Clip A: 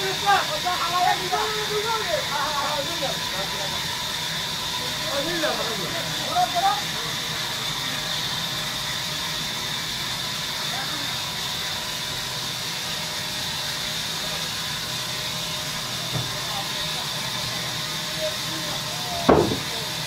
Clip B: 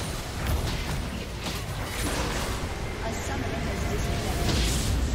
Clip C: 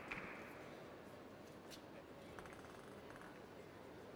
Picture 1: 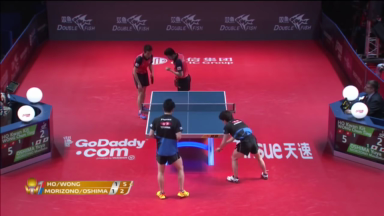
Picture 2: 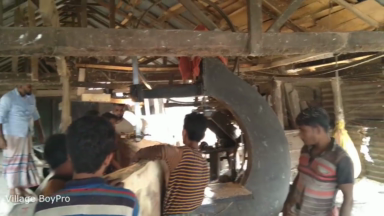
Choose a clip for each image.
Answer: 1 C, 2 A